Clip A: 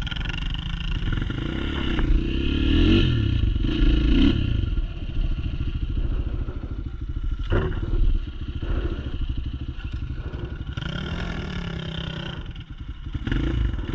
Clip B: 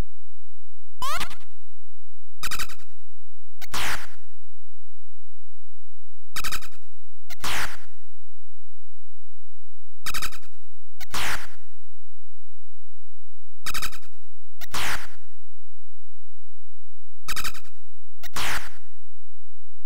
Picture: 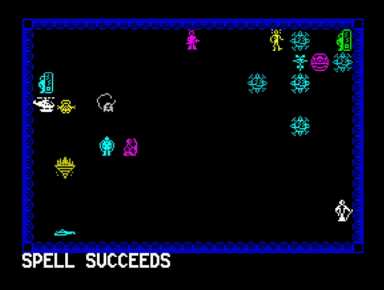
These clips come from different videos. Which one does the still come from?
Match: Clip B